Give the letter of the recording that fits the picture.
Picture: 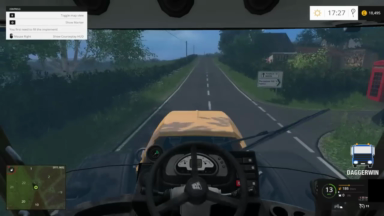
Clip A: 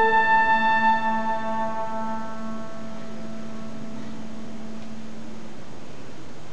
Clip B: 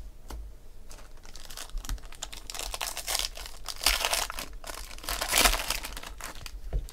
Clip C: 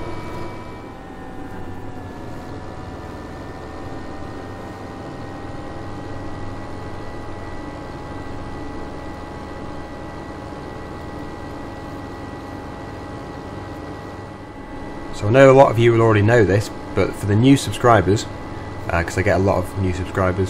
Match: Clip C